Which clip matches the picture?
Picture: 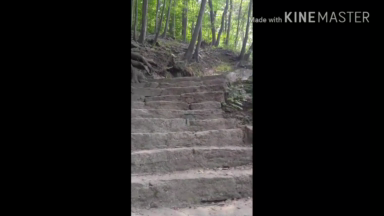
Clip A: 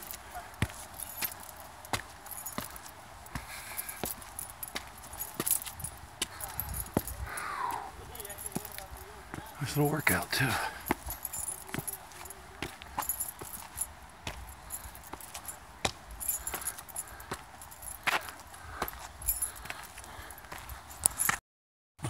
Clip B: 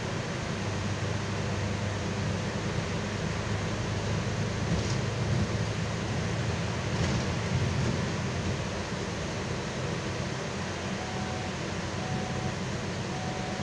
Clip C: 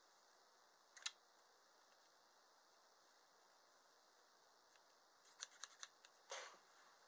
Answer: A